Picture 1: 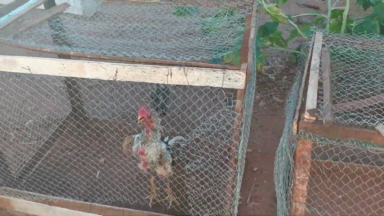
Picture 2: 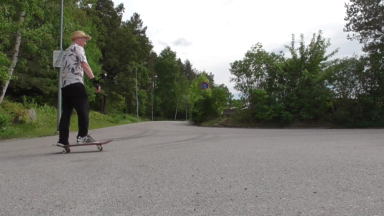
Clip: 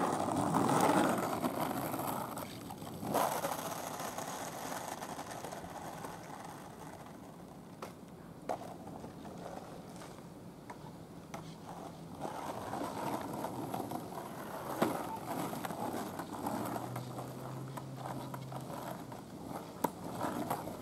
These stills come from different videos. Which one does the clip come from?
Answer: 2